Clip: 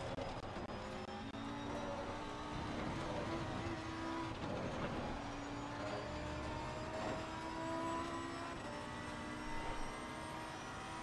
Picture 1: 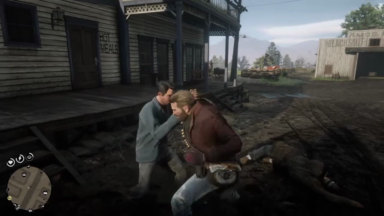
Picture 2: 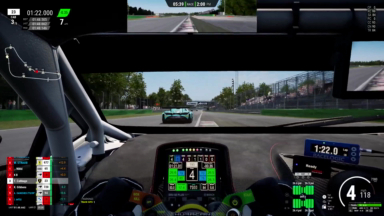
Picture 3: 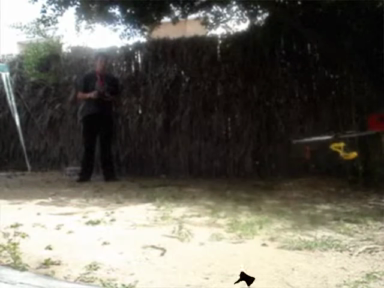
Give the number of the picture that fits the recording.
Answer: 2